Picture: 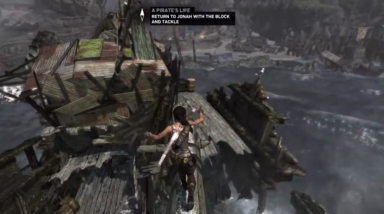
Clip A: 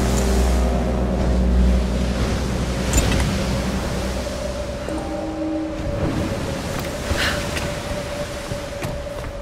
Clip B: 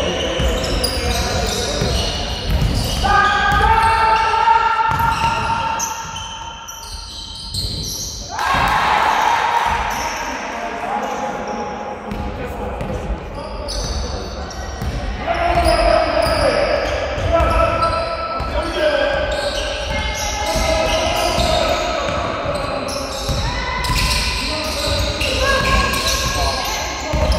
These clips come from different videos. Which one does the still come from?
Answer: A